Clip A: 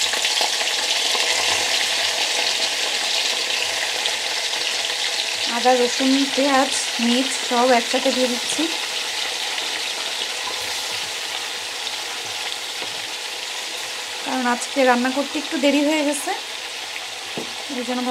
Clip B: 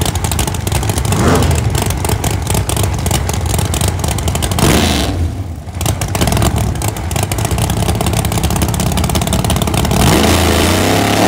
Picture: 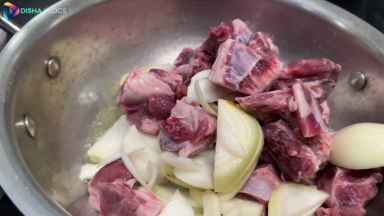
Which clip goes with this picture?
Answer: A